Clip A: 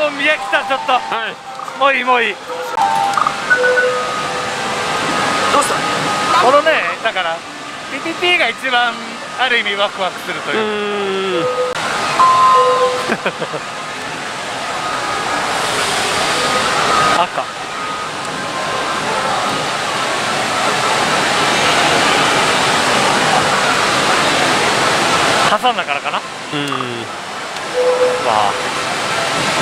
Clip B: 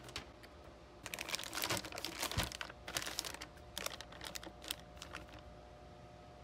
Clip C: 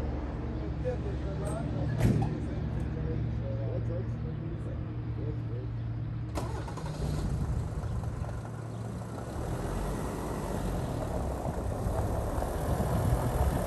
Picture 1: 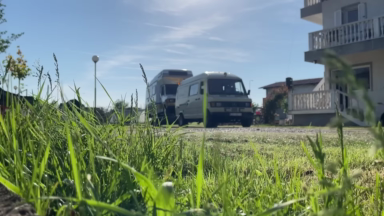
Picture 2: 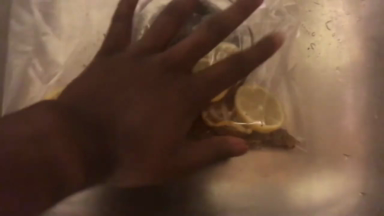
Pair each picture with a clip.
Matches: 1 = C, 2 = B